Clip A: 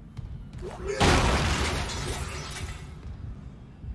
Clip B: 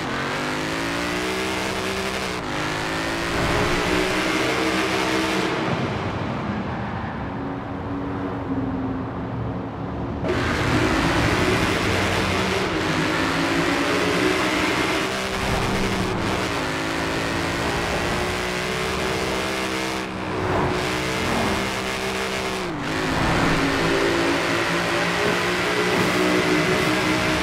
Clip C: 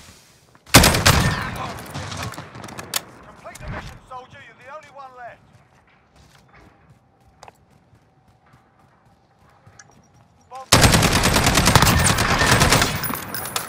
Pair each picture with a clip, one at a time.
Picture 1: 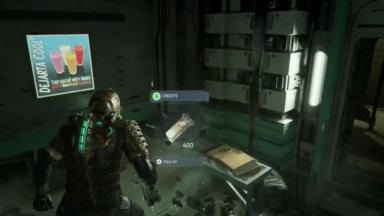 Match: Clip A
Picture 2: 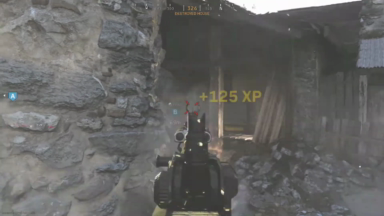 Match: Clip C